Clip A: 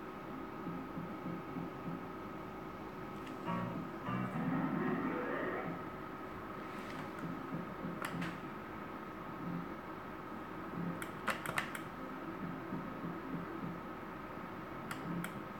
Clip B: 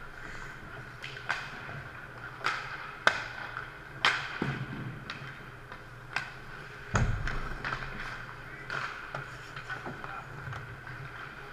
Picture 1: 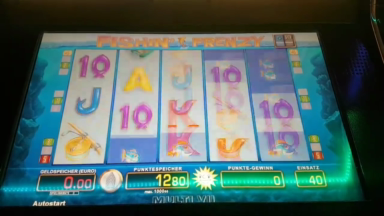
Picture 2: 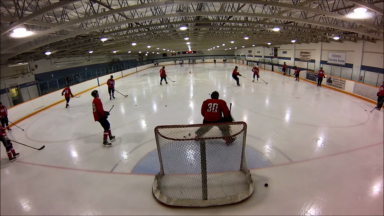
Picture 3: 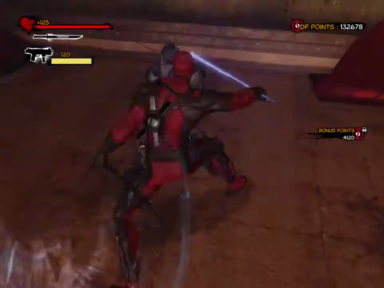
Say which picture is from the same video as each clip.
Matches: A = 1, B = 2